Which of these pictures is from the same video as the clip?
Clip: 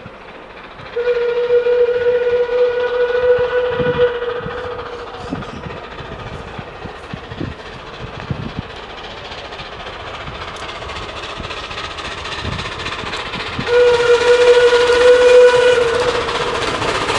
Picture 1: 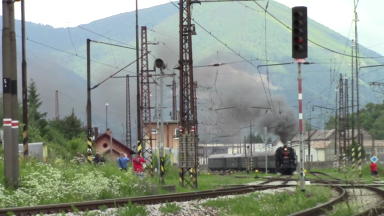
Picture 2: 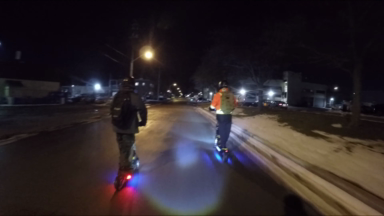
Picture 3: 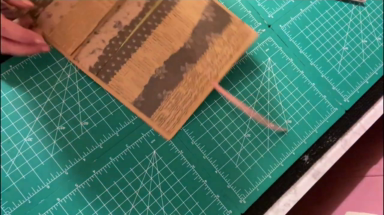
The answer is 1